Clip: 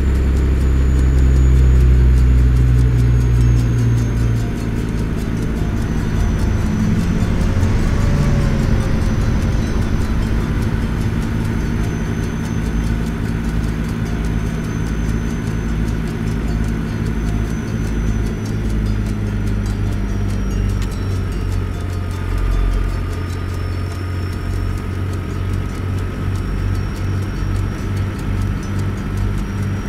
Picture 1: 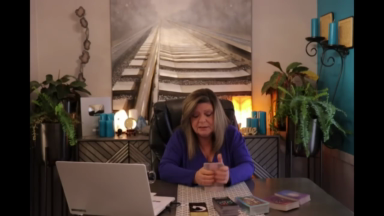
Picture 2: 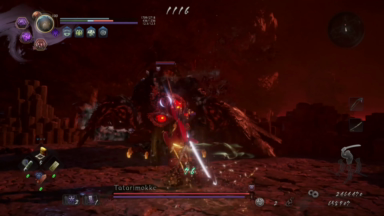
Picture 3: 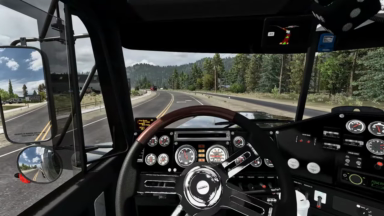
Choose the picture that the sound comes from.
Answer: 3